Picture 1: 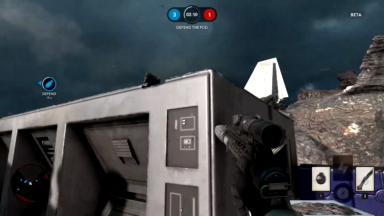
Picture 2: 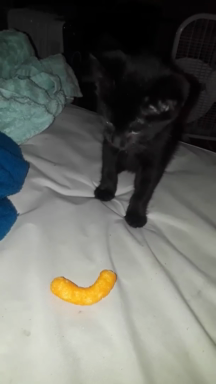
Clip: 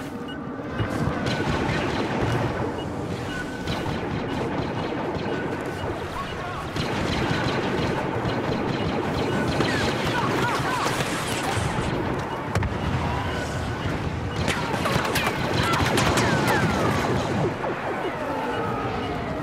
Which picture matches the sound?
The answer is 1